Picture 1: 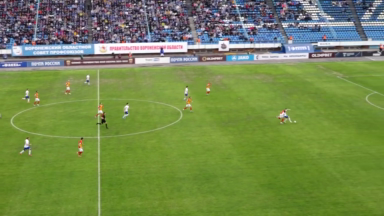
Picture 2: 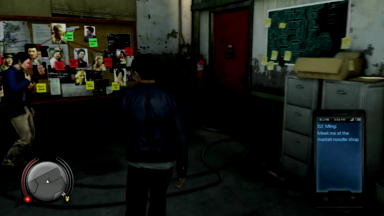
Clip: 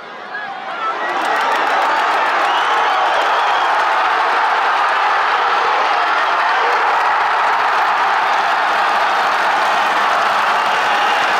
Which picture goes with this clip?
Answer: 1